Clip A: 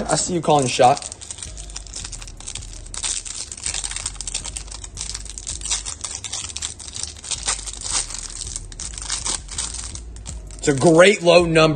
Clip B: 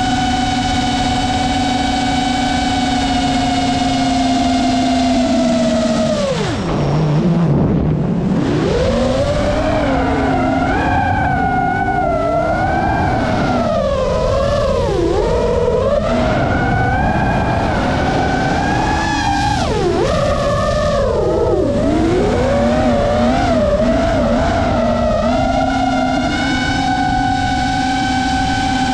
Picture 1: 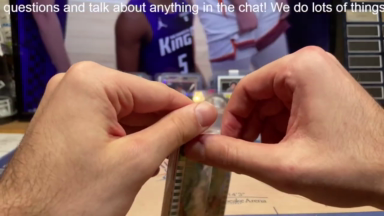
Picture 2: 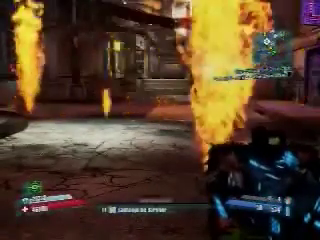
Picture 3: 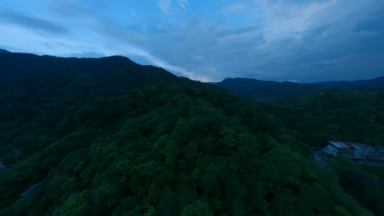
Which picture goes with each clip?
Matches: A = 1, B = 3